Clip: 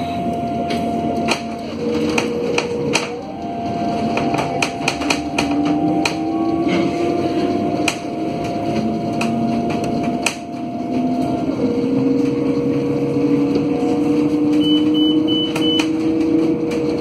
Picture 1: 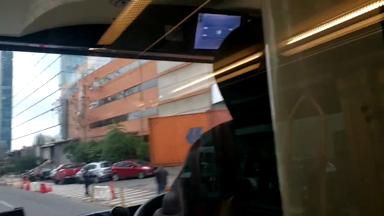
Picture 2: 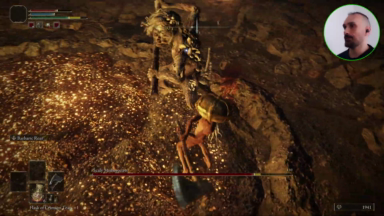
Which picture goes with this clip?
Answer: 1